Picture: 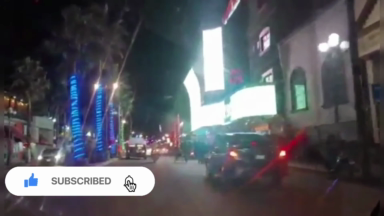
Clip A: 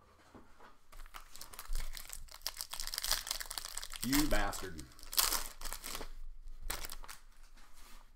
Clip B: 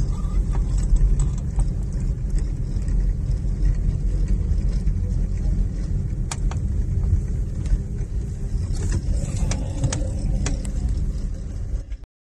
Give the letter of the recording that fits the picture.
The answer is B